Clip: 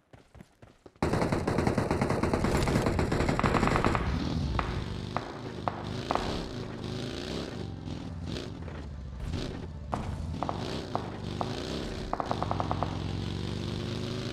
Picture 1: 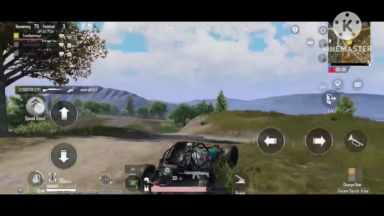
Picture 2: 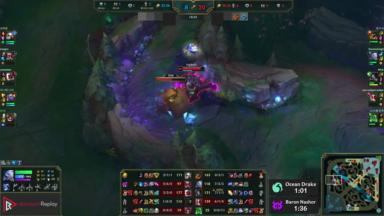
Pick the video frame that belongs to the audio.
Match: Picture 1